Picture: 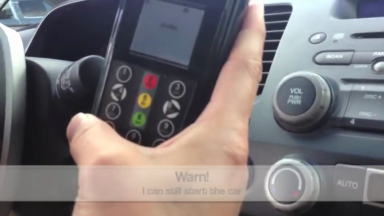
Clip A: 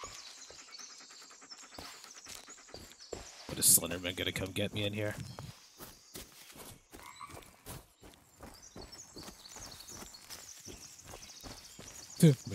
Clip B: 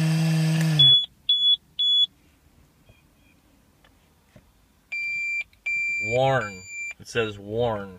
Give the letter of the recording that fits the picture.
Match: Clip B